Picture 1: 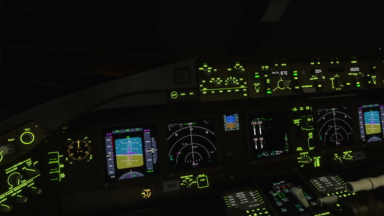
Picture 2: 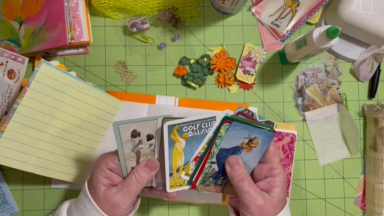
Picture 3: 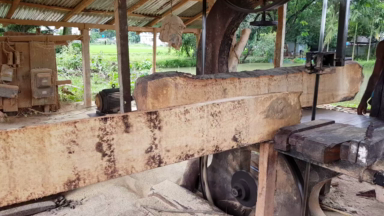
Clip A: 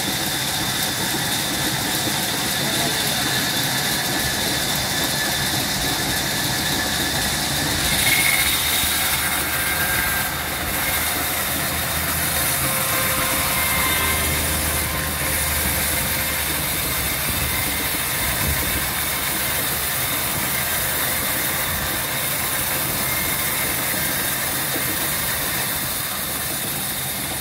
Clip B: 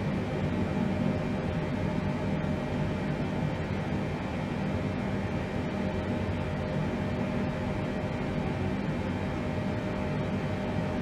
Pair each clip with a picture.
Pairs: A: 3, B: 1